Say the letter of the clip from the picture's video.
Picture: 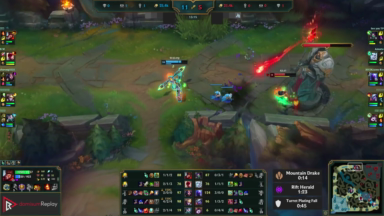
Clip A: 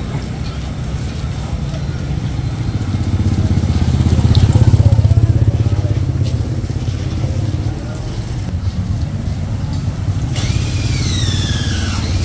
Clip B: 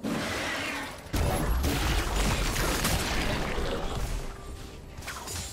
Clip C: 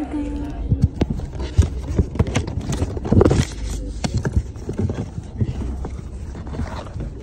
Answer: B